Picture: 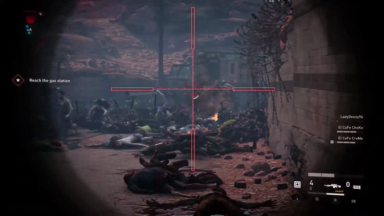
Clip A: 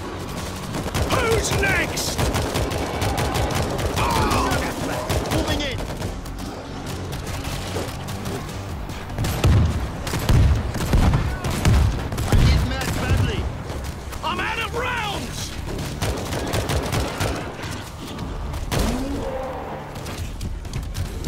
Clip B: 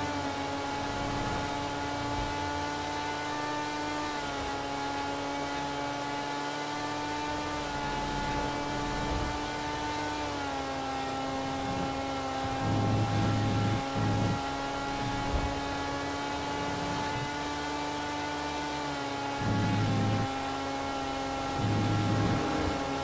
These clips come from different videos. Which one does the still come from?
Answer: A